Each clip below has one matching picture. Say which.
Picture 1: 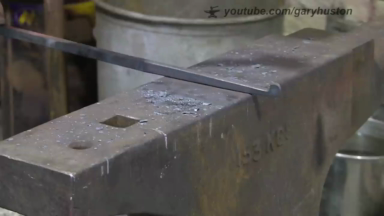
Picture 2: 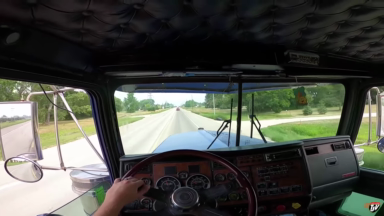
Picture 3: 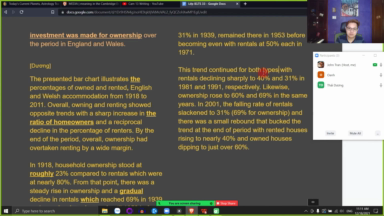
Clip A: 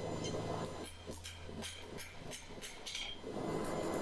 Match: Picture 1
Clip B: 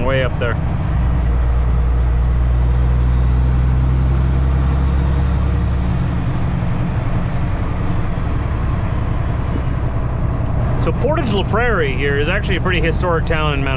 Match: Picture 2